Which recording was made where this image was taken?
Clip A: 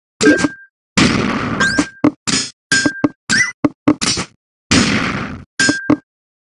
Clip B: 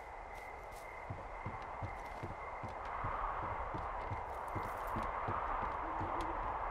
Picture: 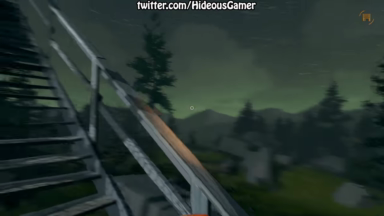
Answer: B